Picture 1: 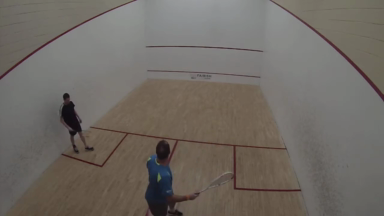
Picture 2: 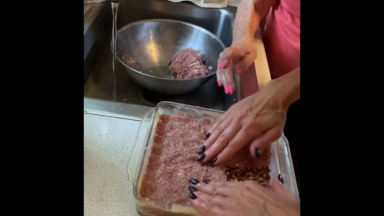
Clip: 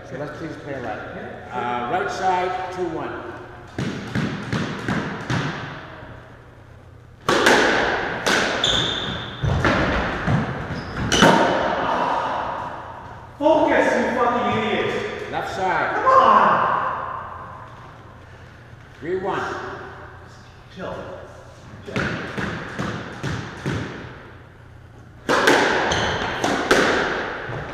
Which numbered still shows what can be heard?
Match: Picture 1